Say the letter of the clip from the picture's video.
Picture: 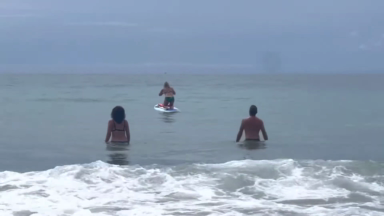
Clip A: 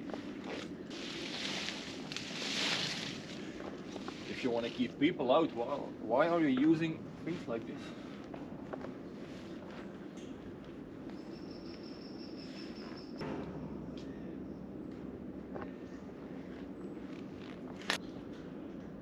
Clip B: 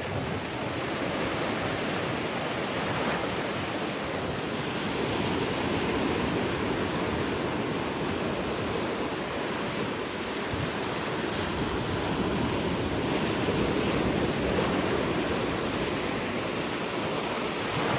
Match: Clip B